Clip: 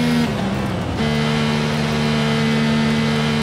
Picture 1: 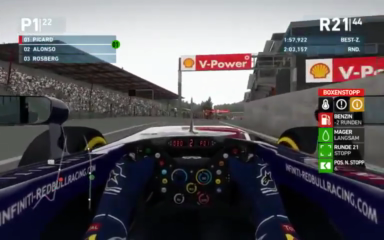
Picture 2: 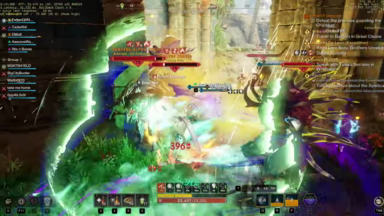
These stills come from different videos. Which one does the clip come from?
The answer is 1